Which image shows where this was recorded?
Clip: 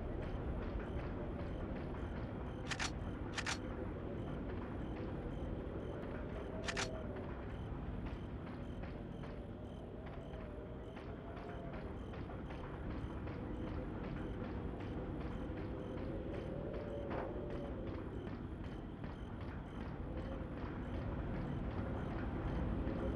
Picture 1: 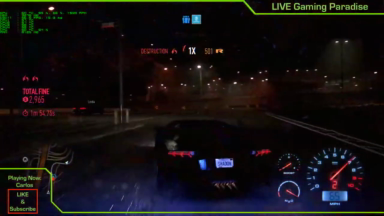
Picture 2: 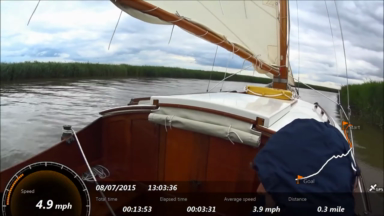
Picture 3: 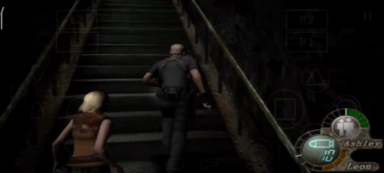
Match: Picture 3